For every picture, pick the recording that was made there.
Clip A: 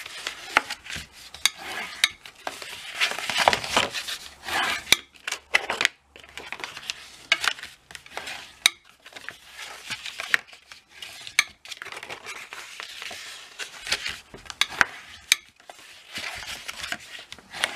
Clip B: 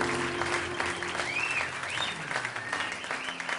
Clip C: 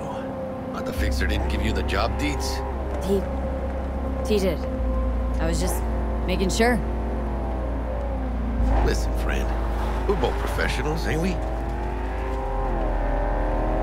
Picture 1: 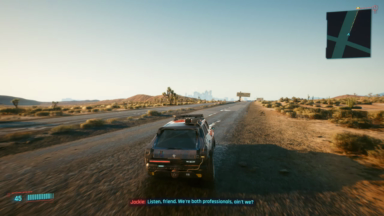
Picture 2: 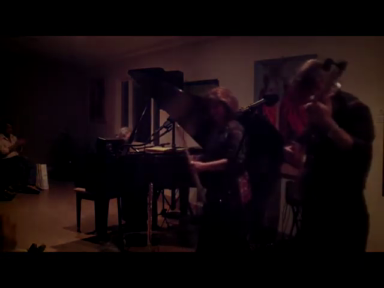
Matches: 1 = C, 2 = B